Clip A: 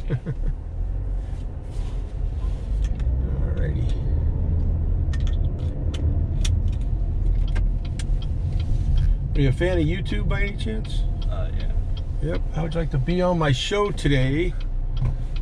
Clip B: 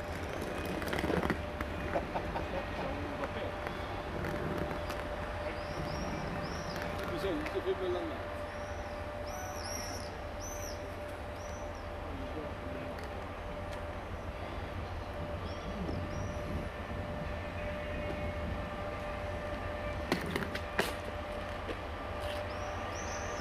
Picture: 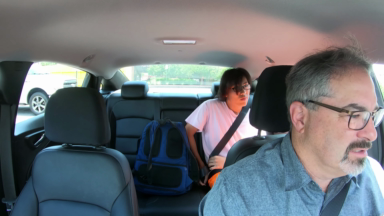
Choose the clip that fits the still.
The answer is A